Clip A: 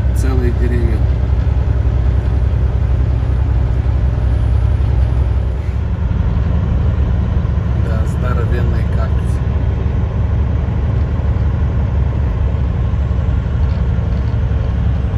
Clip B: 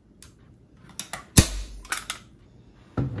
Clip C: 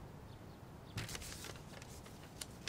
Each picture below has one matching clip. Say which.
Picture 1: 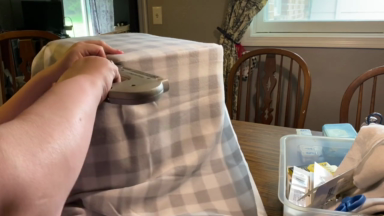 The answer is B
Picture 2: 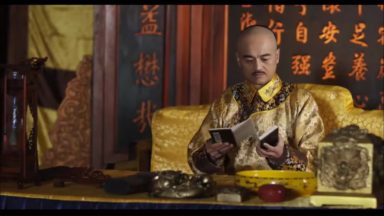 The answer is C